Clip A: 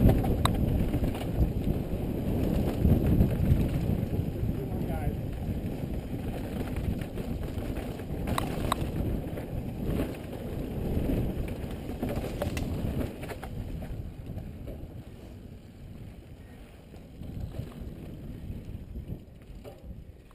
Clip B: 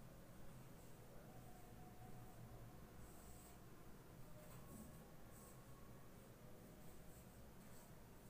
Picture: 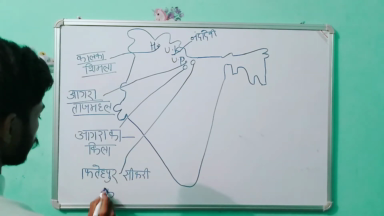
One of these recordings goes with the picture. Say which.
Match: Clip B